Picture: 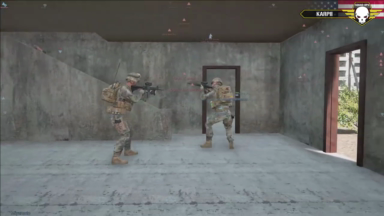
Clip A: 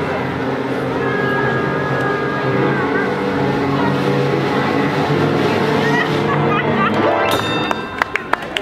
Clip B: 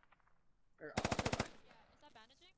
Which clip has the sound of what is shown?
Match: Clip B